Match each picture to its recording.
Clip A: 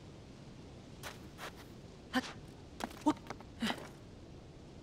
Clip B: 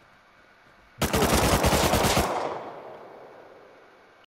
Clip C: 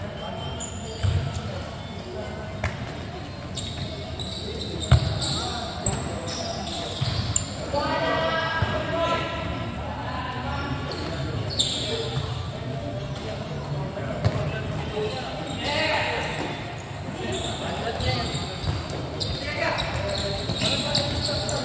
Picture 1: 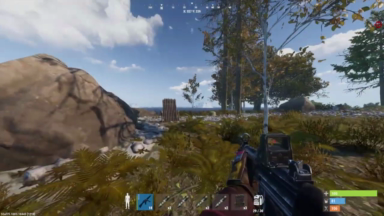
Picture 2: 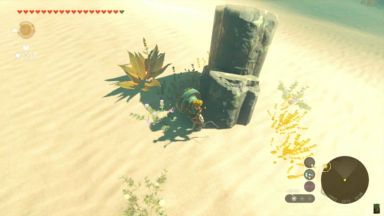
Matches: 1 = B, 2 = A